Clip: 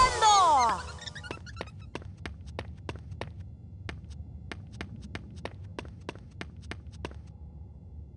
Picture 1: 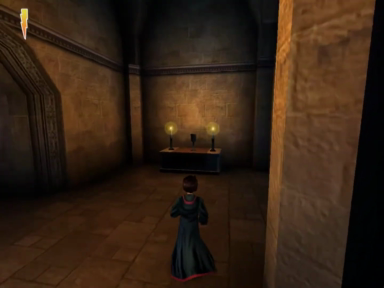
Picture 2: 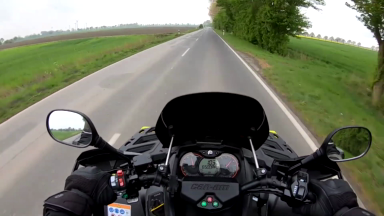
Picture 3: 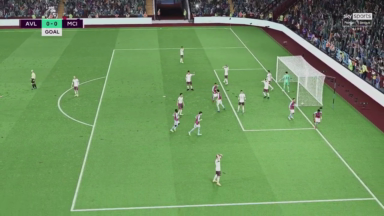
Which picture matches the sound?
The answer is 1